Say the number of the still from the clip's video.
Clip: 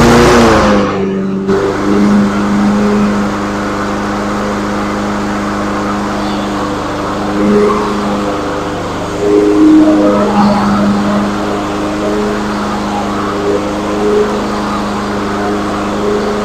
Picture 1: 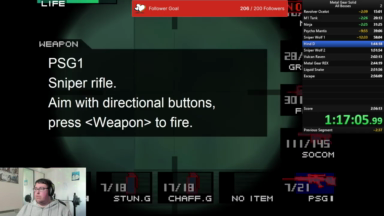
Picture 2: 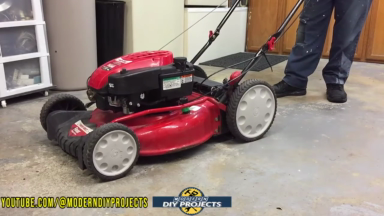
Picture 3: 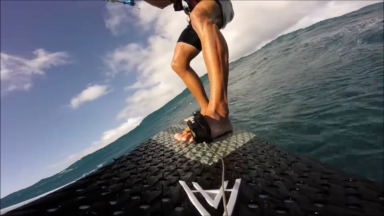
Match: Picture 2